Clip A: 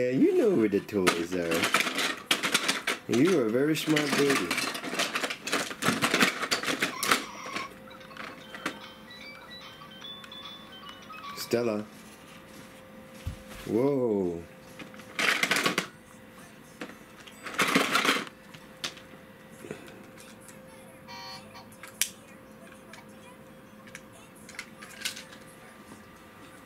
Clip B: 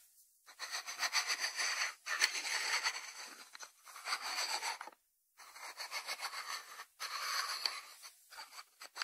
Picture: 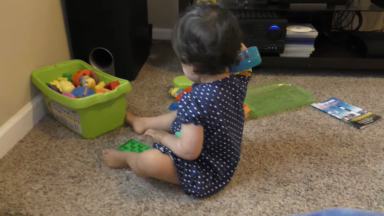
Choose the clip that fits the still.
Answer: A